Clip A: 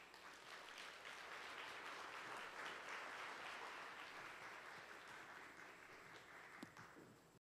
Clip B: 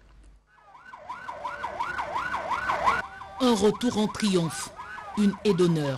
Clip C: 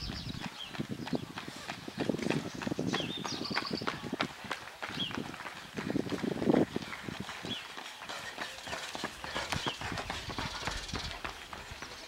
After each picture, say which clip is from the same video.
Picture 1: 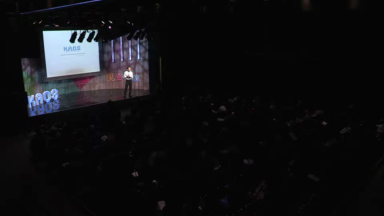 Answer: A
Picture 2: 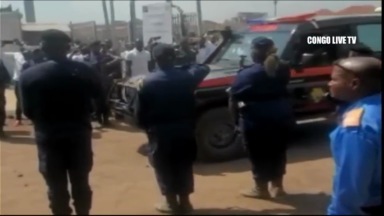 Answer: B